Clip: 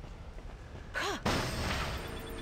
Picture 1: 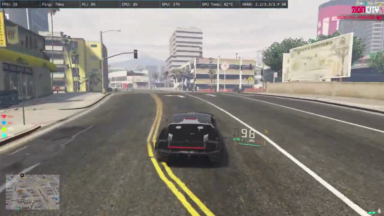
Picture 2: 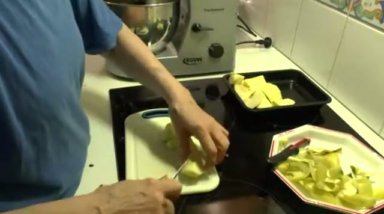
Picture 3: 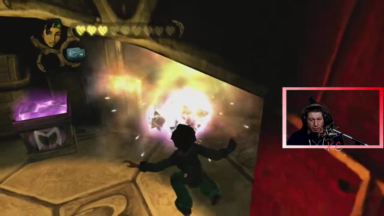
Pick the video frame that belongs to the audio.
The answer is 3